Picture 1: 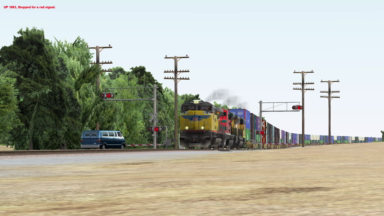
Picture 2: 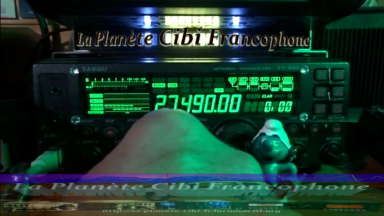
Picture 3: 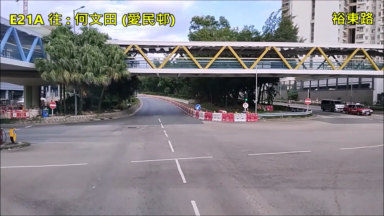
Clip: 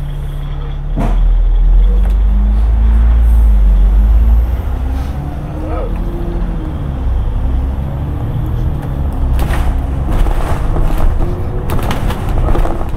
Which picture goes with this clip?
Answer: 3